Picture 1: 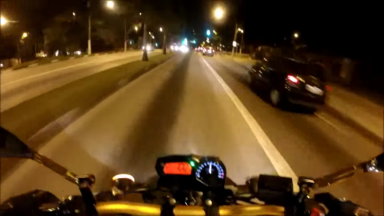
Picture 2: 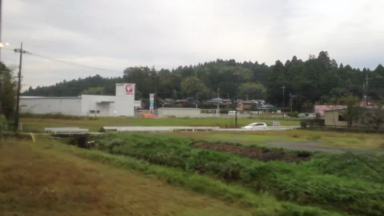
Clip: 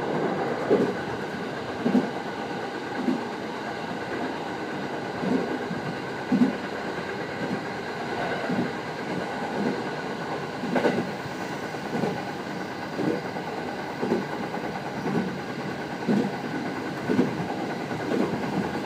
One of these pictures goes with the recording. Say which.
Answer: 2